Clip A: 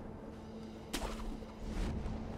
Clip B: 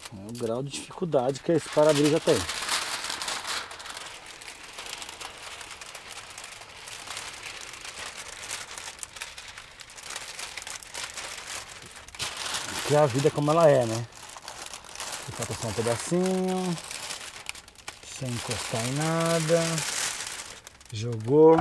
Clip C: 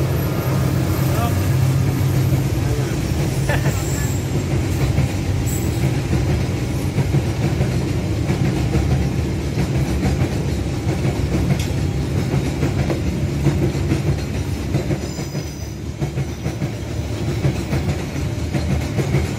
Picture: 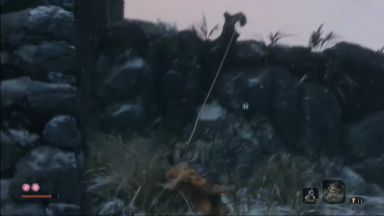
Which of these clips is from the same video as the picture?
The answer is A